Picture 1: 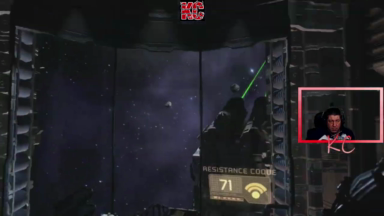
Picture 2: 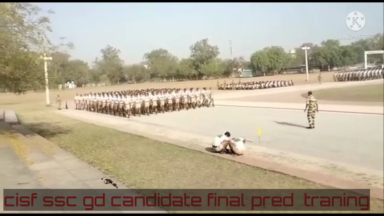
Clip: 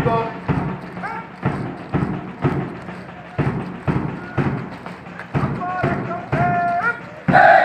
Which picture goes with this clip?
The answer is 2